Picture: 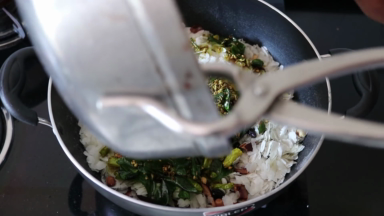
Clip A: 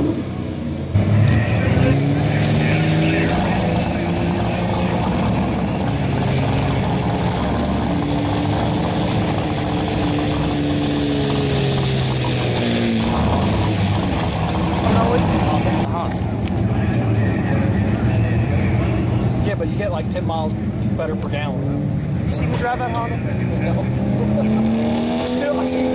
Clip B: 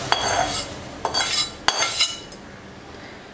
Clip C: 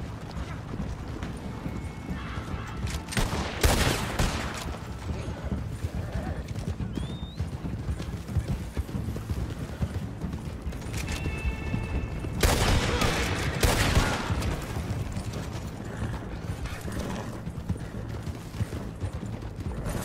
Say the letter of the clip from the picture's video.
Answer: B